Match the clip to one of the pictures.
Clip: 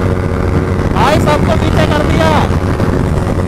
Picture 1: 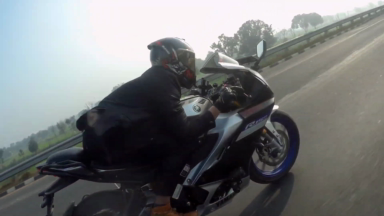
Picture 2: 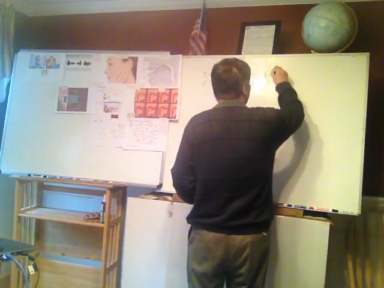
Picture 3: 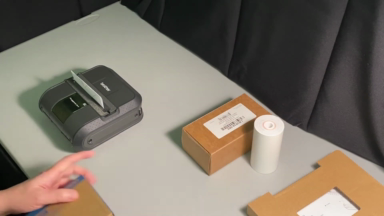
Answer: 1